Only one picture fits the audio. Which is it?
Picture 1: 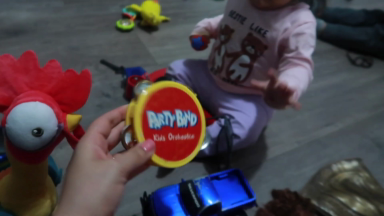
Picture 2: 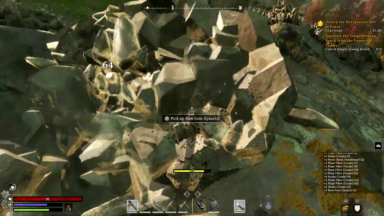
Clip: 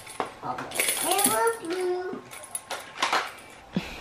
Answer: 1